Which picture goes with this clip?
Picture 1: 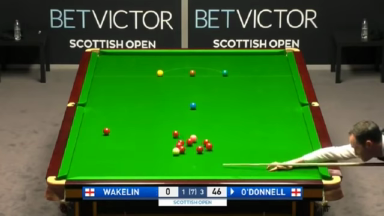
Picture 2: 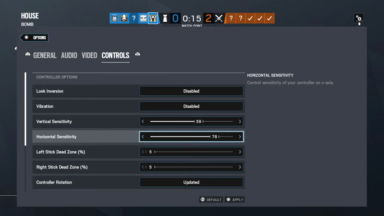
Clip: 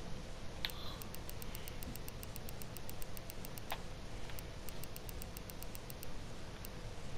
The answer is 2